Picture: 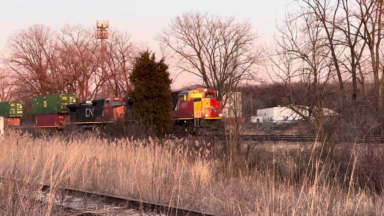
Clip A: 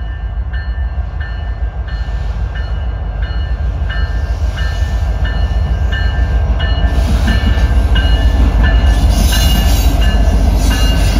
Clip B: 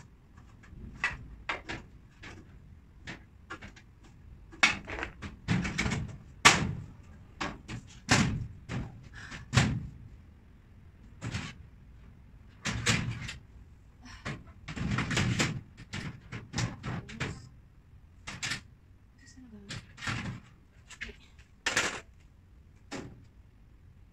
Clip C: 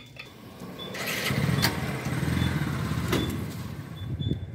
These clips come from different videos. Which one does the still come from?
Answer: A